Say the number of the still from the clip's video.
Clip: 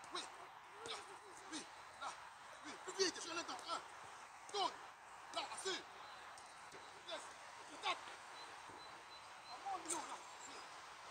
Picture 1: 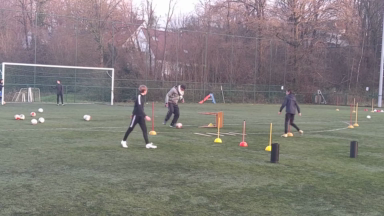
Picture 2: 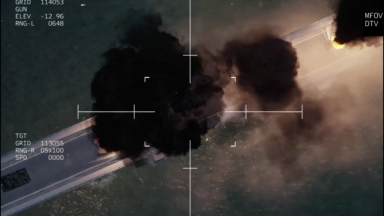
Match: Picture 1